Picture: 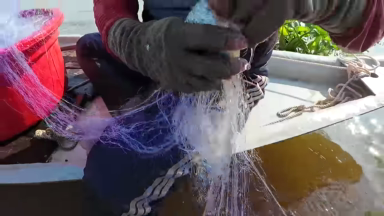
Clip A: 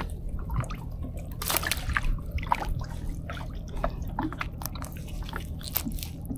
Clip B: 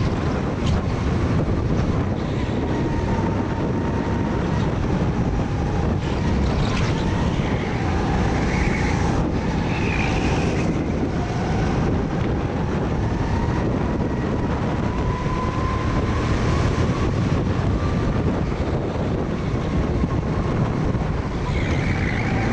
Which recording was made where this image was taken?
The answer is A